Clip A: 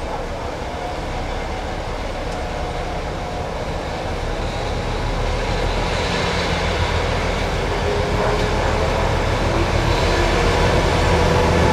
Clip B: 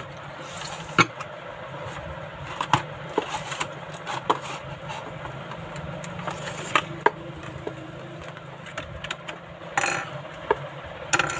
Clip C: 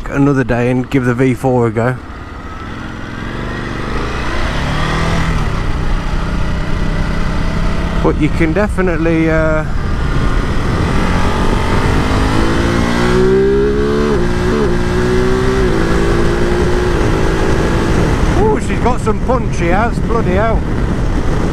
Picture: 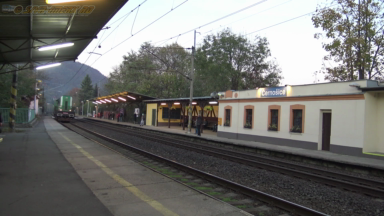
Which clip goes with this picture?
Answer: A